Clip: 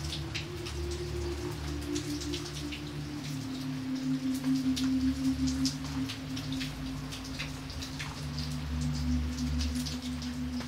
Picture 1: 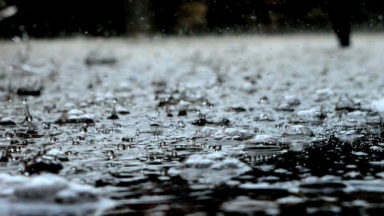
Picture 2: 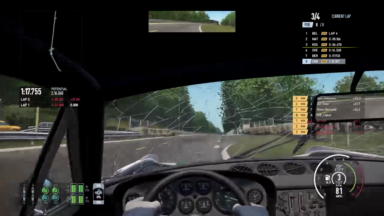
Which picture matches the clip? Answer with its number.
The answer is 1